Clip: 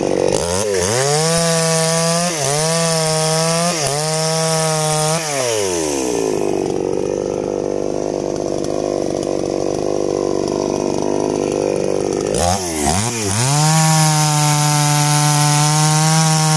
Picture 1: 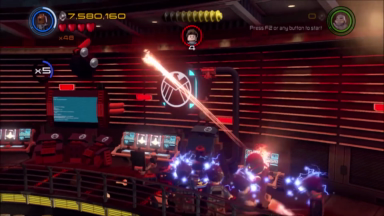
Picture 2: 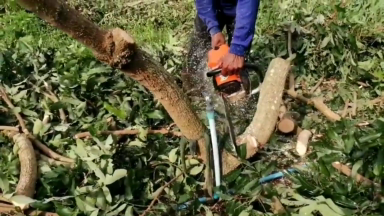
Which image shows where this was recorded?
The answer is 2